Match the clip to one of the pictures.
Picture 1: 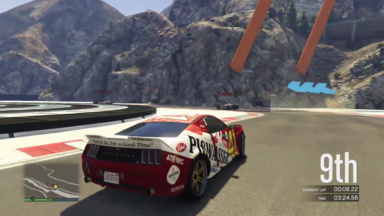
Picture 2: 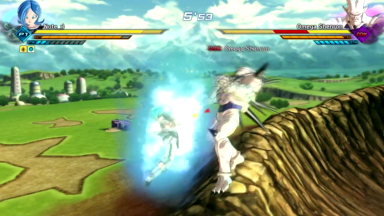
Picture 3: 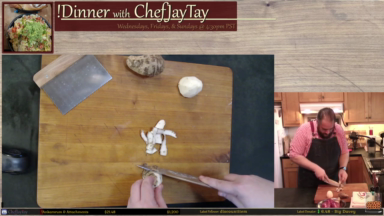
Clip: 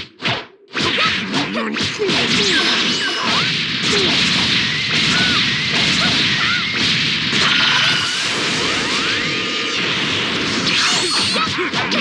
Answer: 2